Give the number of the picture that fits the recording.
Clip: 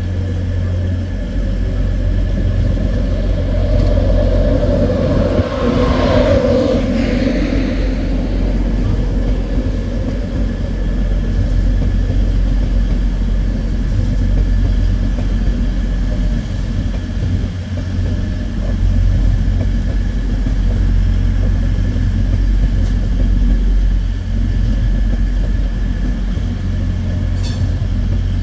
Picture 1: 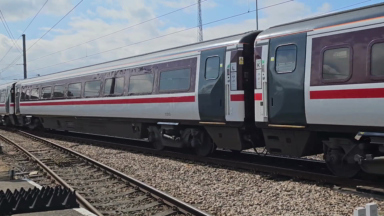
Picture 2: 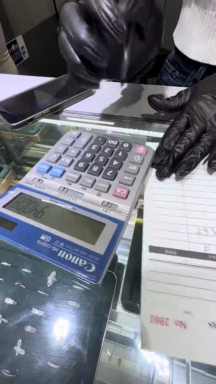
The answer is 1